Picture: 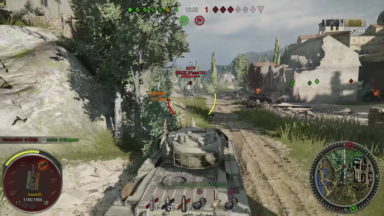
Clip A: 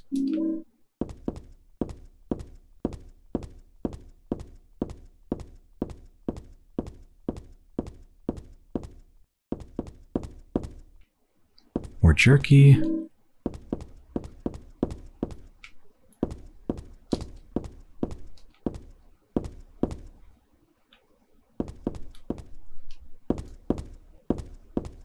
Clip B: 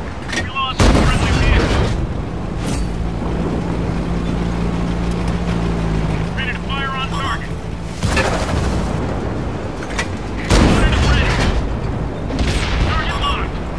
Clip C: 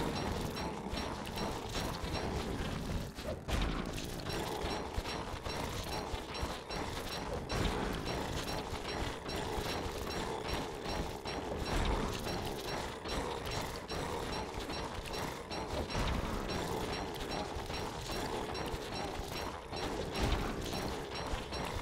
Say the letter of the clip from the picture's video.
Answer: B